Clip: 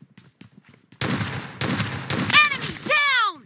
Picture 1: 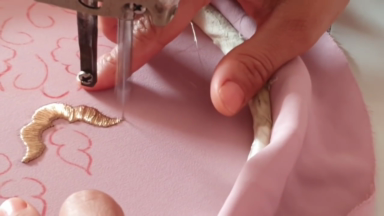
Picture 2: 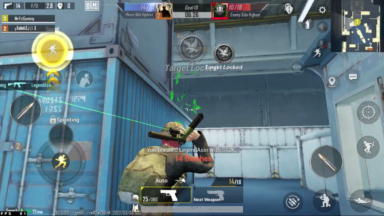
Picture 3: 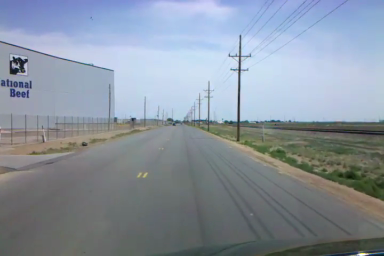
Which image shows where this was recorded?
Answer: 2